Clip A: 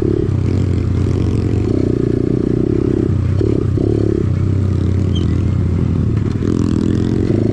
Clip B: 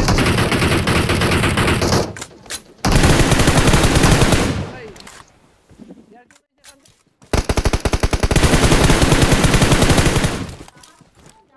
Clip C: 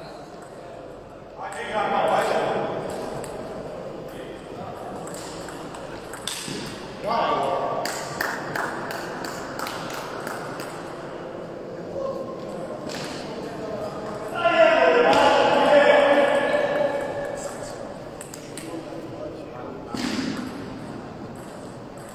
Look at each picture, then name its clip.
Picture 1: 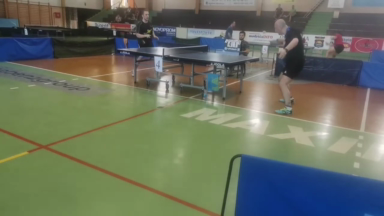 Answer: C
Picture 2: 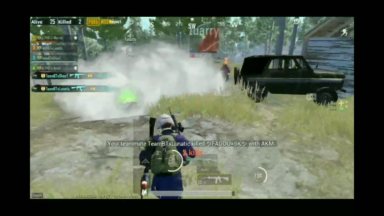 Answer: B